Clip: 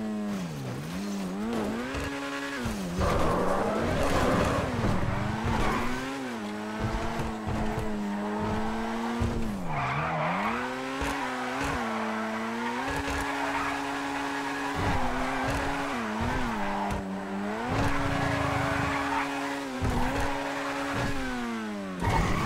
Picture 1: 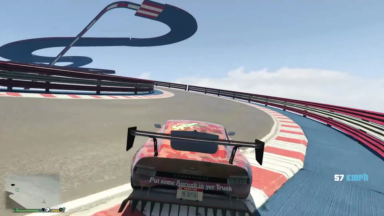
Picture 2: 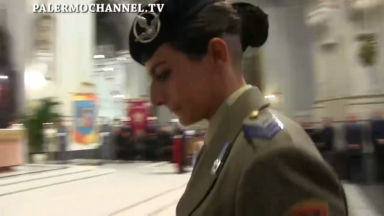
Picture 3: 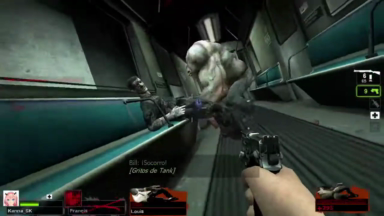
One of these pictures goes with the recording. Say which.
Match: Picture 1